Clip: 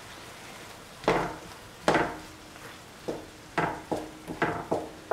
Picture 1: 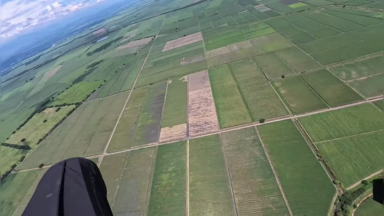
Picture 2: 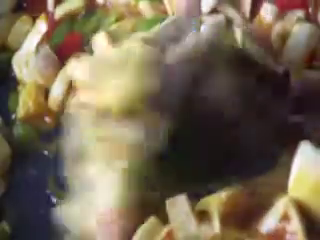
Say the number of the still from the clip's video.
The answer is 2